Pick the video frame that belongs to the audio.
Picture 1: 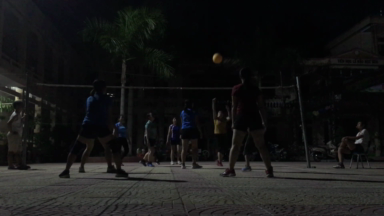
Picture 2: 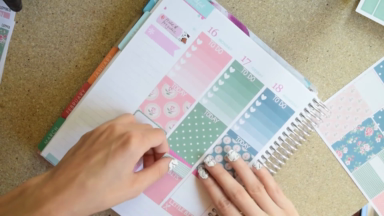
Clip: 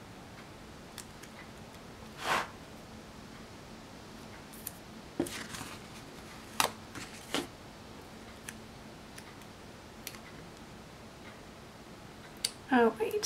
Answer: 2